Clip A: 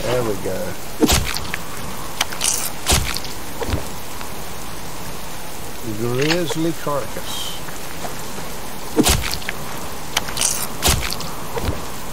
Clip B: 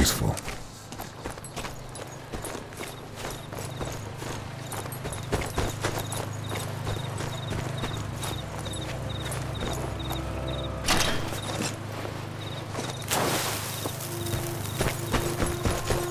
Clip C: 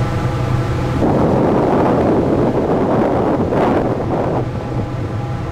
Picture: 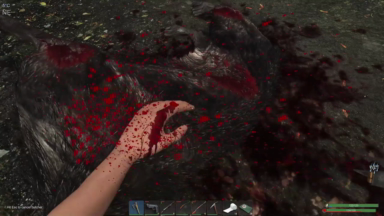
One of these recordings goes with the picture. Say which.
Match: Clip A